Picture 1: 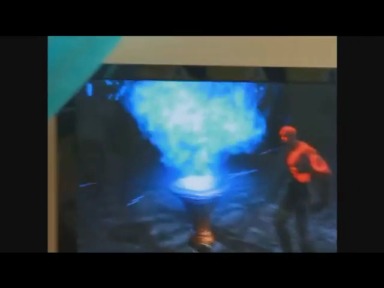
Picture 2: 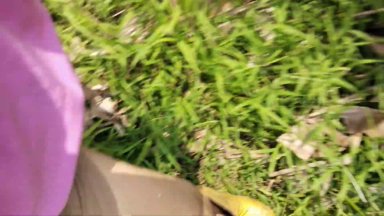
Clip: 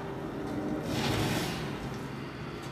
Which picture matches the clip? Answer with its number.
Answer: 1